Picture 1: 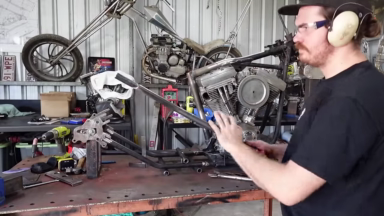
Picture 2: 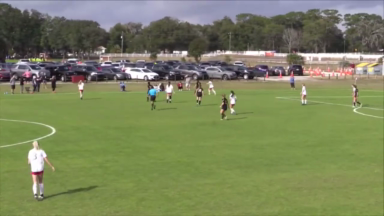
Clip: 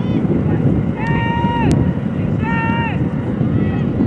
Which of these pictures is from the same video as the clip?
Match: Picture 2